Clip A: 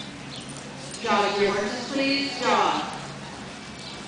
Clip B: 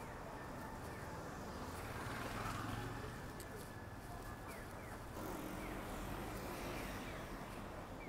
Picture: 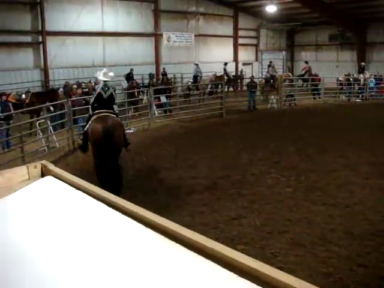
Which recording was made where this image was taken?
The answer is A